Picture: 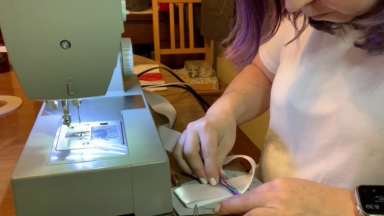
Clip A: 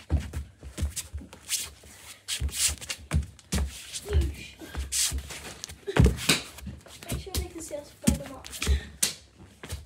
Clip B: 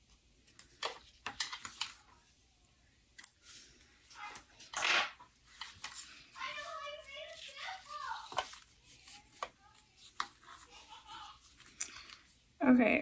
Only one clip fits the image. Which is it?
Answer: B